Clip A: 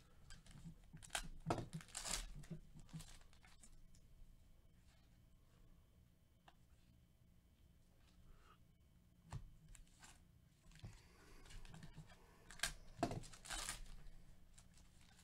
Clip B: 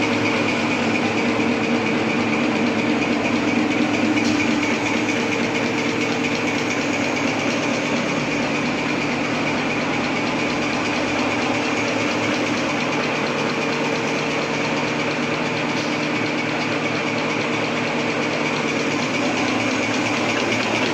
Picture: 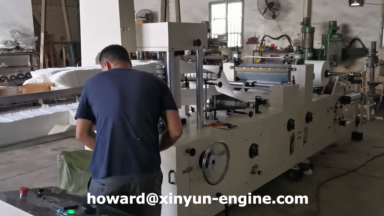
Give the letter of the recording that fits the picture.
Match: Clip B